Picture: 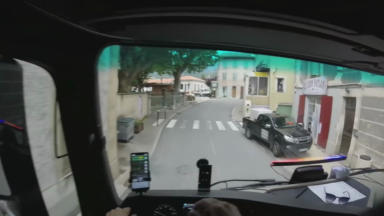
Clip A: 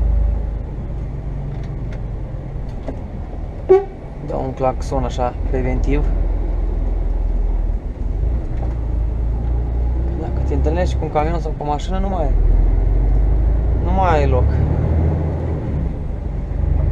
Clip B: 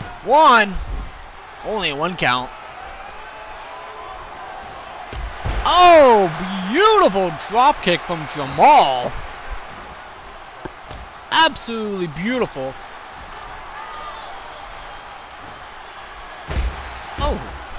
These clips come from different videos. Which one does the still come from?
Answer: A